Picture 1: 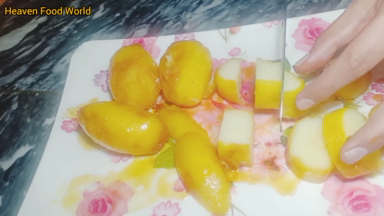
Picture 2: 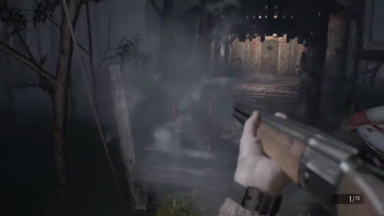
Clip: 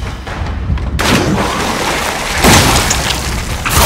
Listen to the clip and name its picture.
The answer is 2